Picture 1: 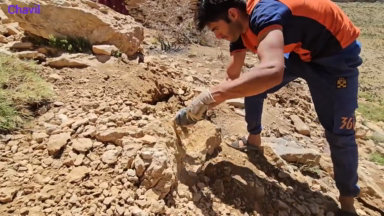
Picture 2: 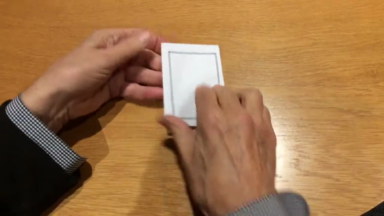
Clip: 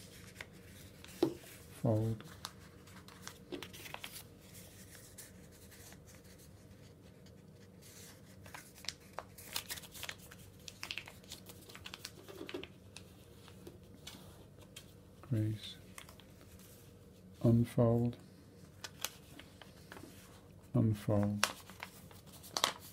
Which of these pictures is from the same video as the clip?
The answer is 2